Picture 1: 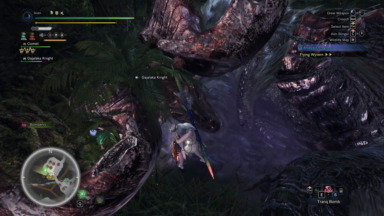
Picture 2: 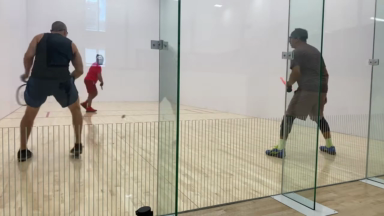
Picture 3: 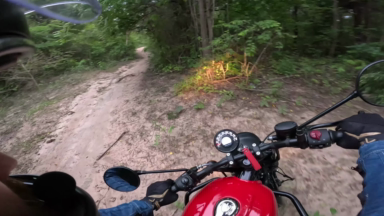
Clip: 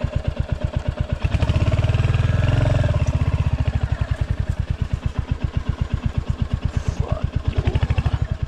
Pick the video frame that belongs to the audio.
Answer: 3